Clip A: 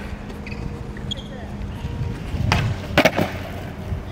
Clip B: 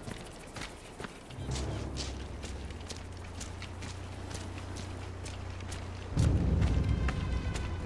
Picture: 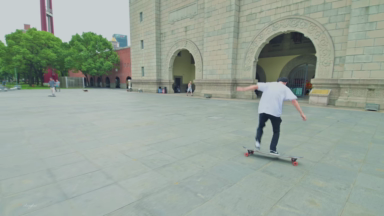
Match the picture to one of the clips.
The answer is A